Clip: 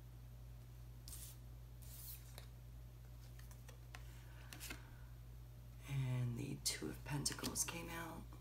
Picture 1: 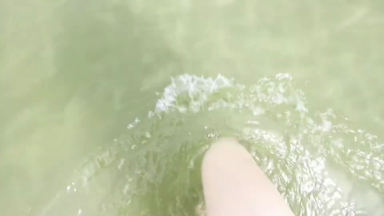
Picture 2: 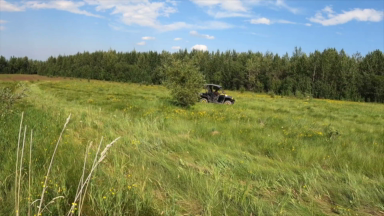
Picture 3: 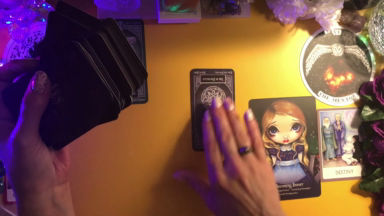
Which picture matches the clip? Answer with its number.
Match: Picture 3